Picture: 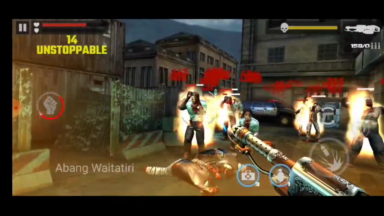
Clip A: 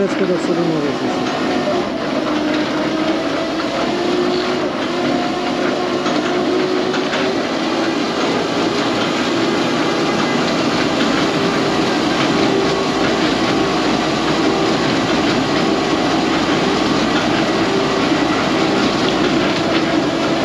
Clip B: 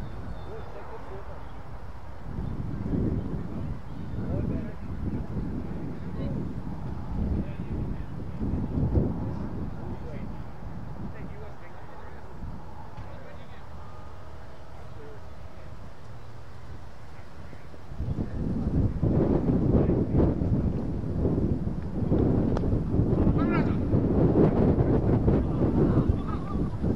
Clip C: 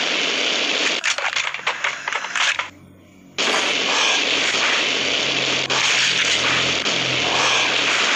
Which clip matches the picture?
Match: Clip C